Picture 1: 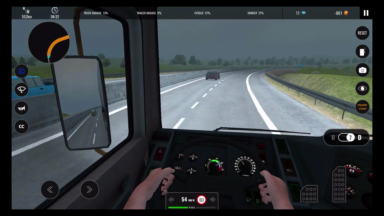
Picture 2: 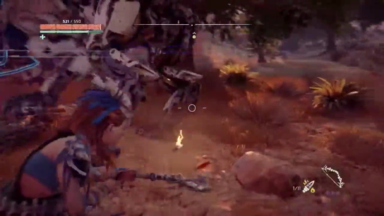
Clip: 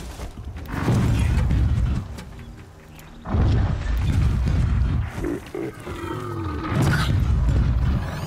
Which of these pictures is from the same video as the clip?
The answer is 2